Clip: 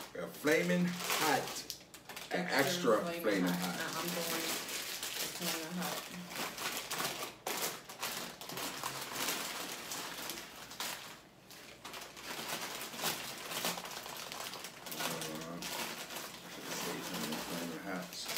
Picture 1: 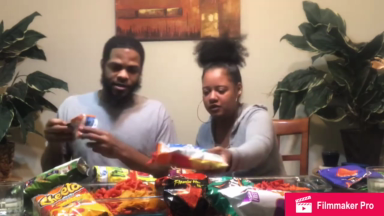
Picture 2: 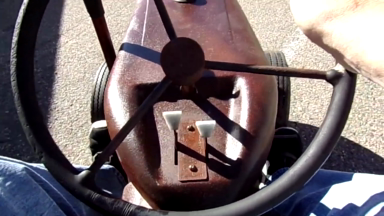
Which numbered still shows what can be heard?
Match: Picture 1